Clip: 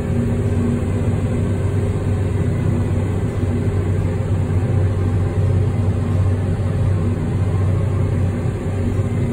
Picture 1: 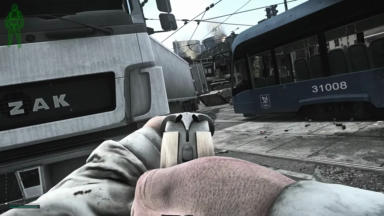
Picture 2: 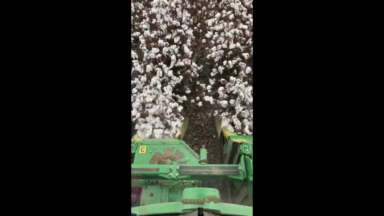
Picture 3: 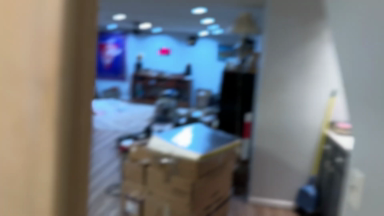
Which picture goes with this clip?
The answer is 2